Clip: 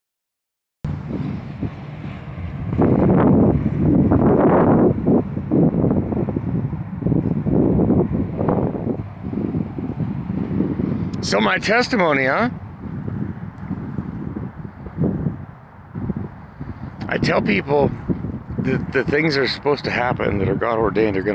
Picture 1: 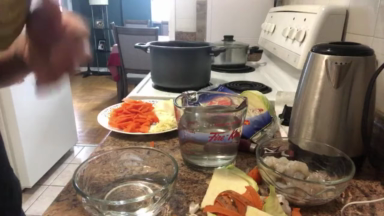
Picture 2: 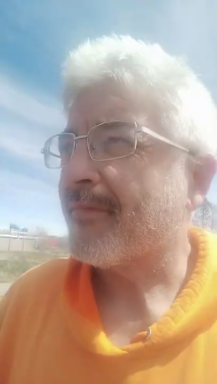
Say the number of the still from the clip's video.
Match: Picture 2